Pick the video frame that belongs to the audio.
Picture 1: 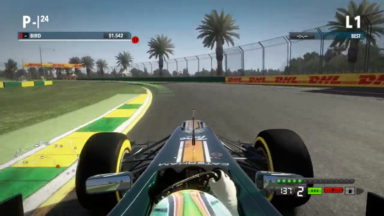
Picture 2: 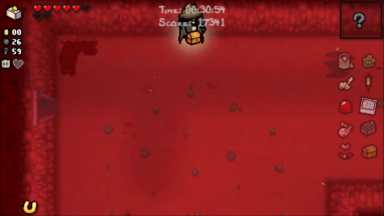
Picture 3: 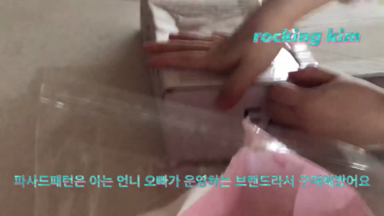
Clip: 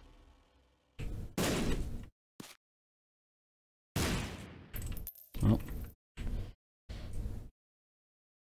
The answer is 2